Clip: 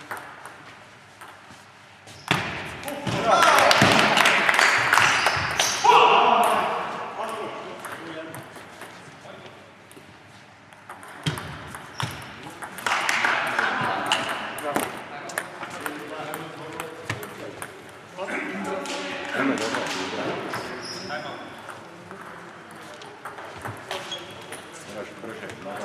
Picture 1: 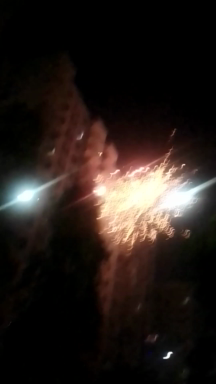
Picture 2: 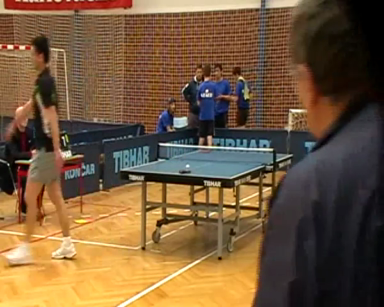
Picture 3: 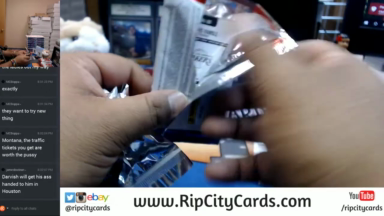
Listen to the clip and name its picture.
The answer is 2